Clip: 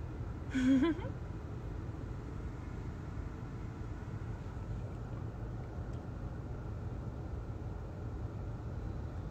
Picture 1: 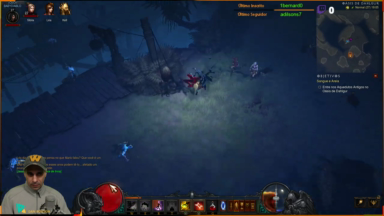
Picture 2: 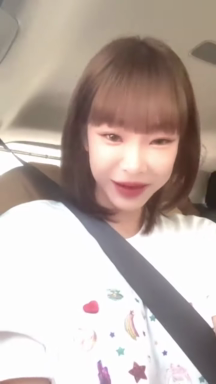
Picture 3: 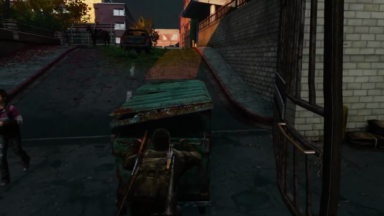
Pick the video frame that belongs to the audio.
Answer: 2